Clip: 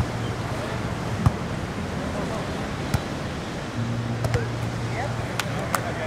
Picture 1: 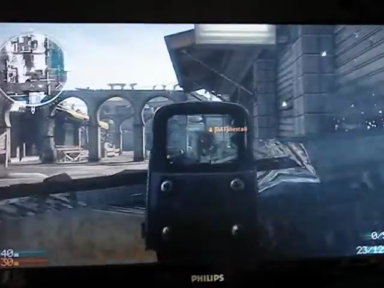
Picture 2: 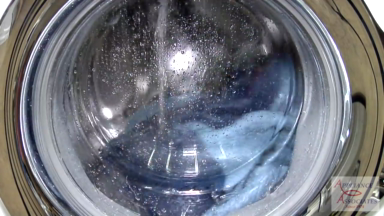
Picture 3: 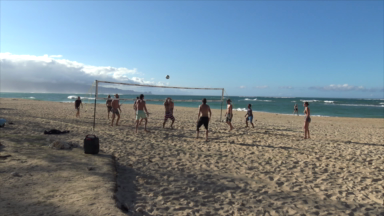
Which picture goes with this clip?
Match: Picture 3